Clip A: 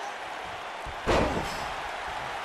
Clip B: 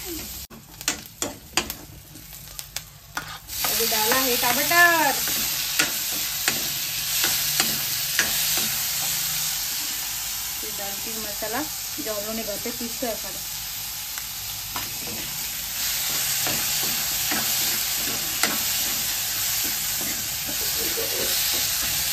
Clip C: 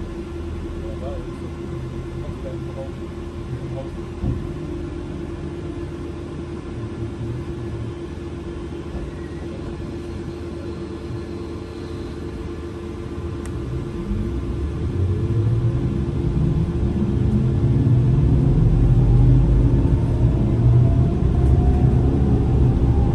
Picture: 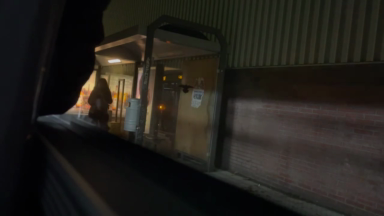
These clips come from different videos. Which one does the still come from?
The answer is C